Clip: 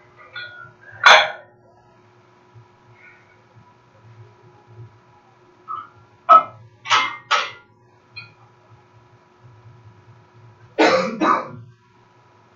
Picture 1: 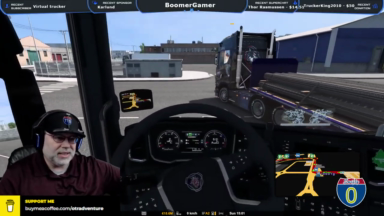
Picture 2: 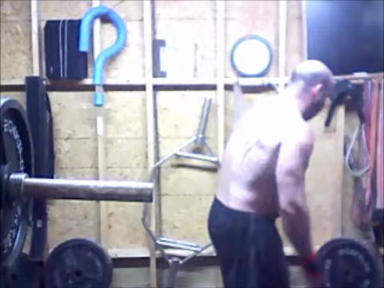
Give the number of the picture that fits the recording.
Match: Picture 2